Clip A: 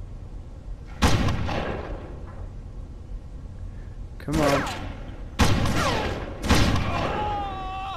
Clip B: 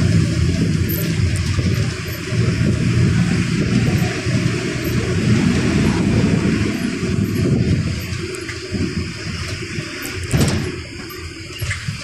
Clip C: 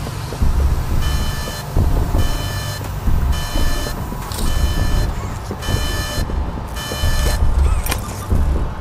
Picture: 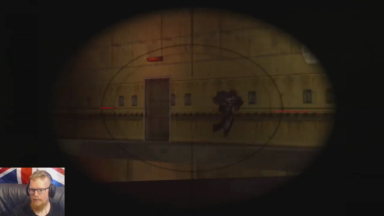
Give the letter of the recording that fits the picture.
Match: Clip A